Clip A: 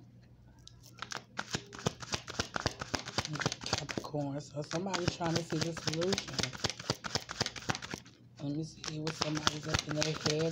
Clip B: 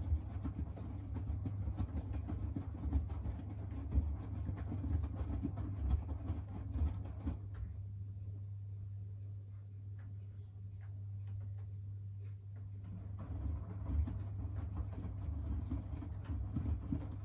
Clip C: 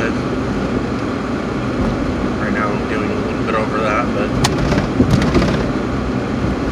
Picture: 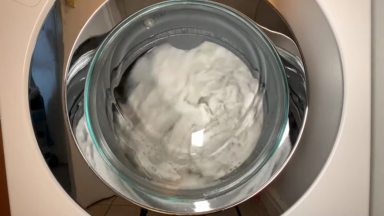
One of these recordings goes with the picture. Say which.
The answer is B